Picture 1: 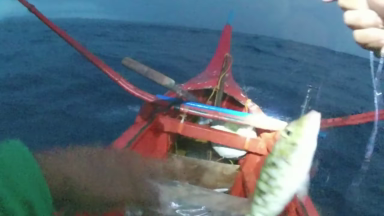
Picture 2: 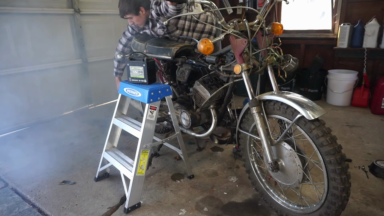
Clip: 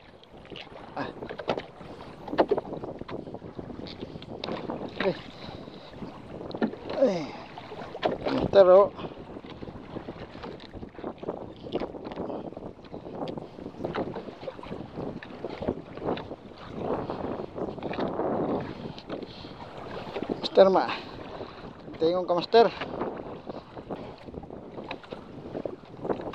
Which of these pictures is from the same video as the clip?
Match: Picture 1